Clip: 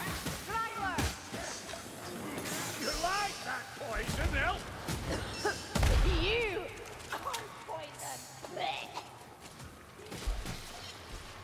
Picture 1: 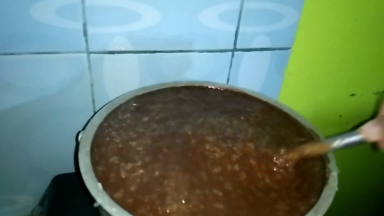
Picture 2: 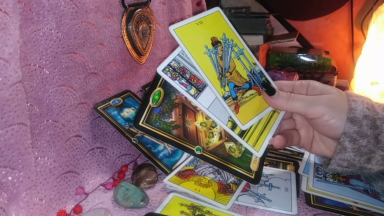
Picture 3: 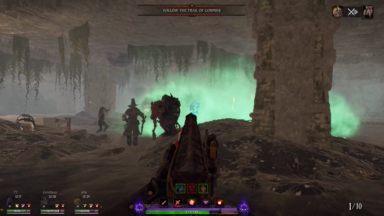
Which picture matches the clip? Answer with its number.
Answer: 3